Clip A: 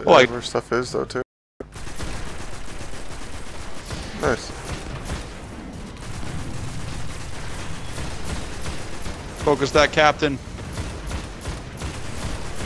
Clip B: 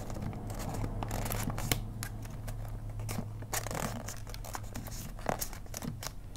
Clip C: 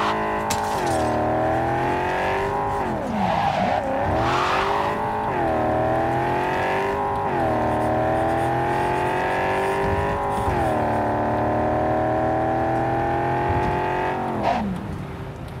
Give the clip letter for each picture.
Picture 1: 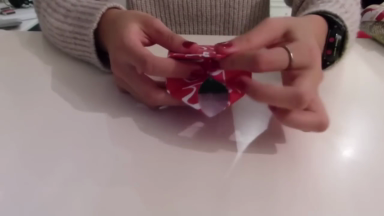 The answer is B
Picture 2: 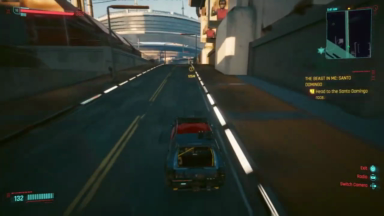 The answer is C